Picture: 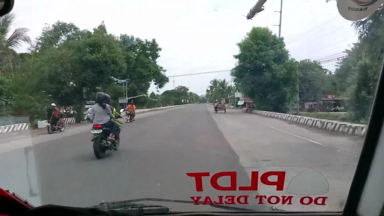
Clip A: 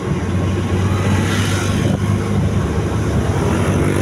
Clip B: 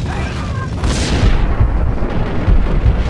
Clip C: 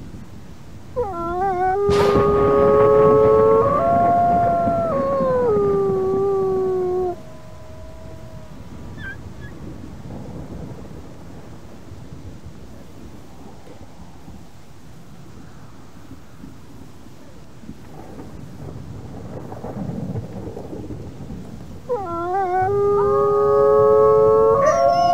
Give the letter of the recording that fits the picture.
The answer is A